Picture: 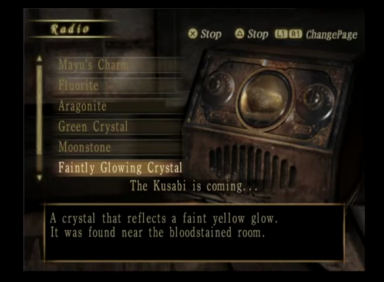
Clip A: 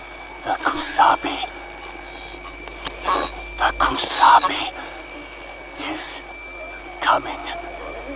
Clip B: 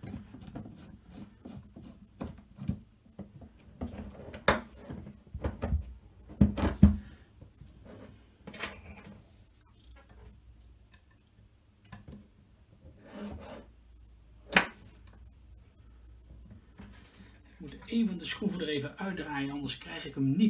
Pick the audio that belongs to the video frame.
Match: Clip A